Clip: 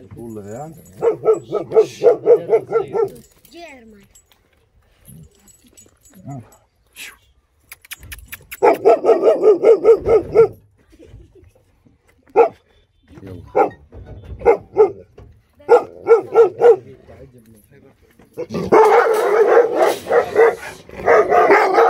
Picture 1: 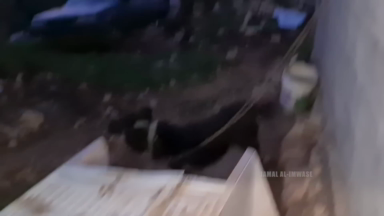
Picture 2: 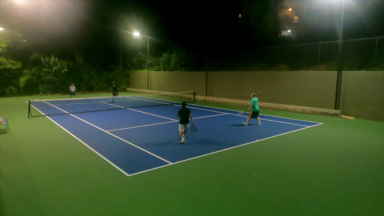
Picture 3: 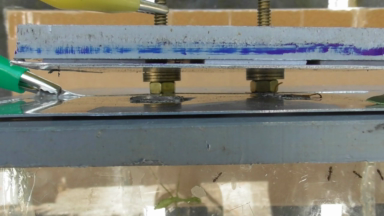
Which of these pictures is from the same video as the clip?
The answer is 1